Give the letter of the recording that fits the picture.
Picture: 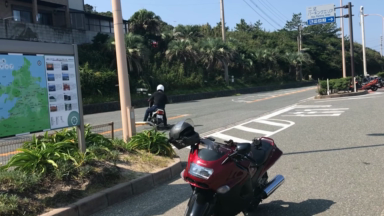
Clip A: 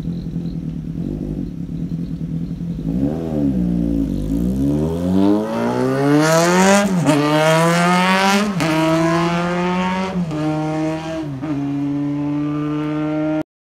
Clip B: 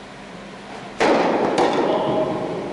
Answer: A